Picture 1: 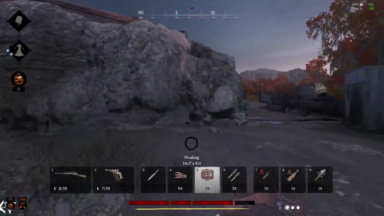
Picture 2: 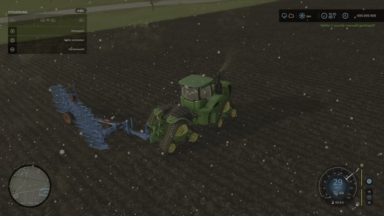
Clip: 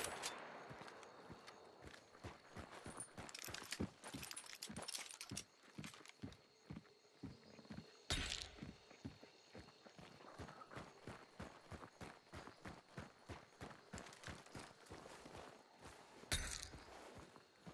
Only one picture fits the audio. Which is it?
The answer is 1